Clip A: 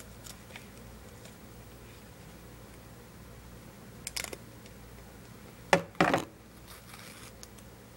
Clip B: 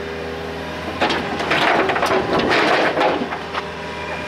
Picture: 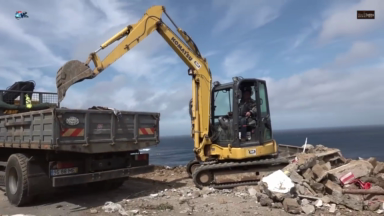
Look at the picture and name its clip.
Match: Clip B